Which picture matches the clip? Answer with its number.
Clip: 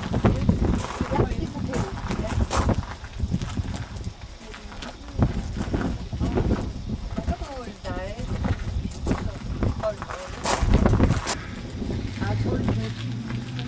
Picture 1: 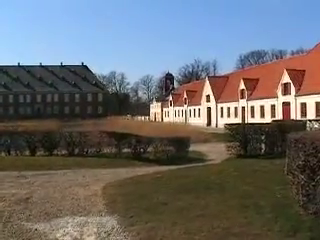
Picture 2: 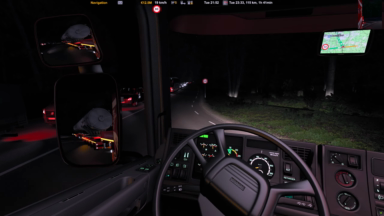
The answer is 1